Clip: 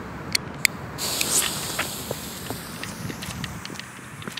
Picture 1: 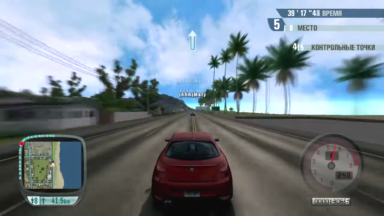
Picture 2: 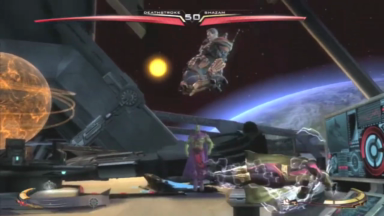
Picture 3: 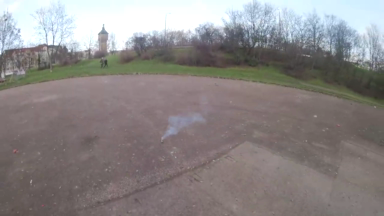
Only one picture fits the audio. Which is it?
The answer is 3